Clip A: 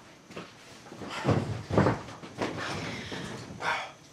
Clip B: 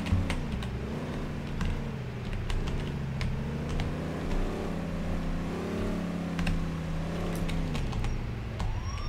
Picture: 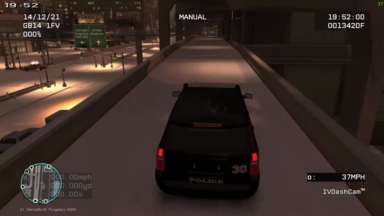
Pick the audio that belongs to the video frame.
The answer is B